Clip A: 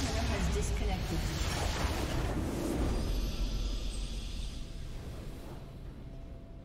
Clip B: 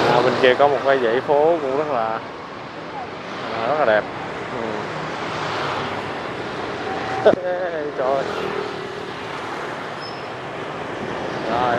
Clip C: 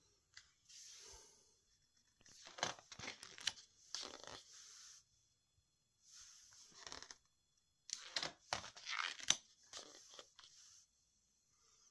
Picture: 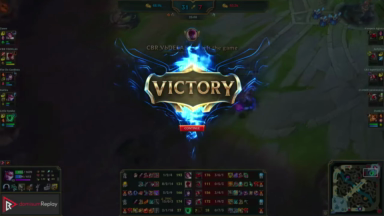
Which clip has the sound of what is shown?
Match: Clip A